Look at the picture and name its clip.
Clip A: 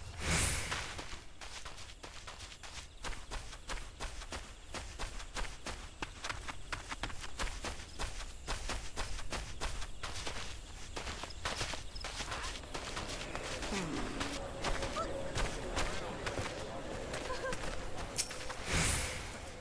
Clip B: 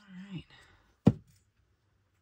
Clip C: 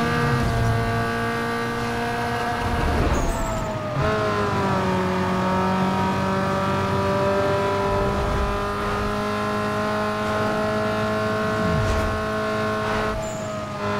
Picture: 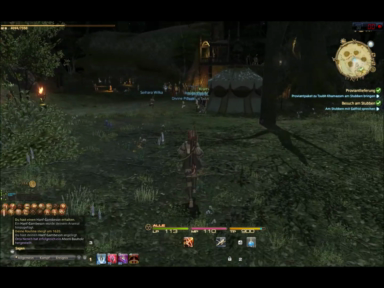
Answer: A